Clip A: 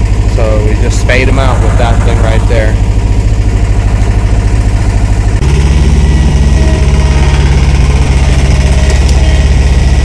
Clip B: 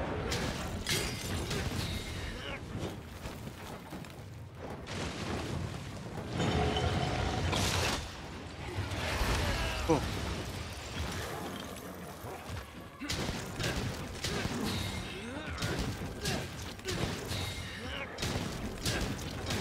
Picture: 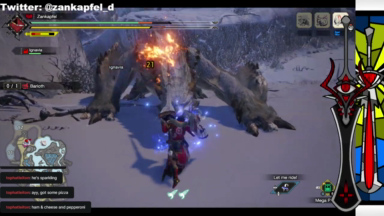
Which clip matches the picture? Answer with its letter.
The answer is B